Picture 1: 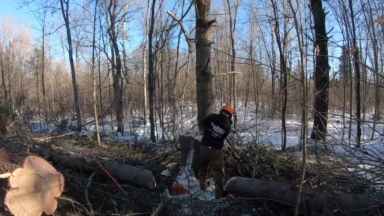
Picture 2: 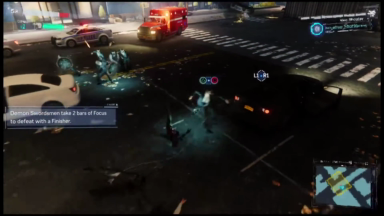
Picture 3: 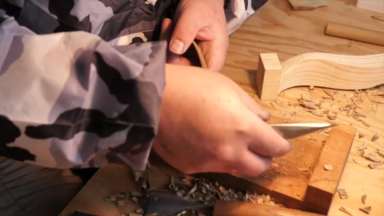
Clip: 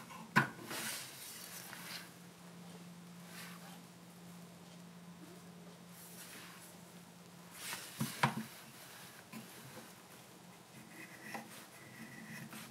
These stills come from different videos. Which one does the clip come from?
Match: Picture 3